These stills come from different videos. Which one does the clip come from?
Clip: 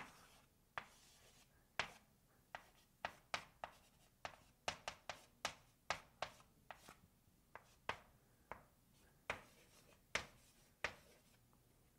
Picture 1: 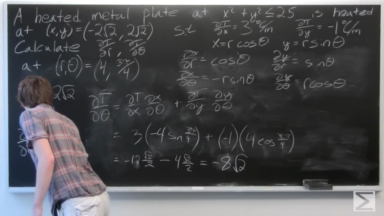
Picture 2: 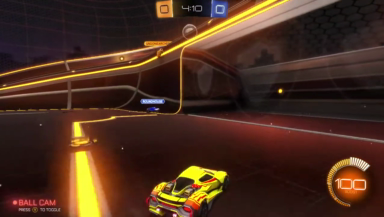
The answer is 1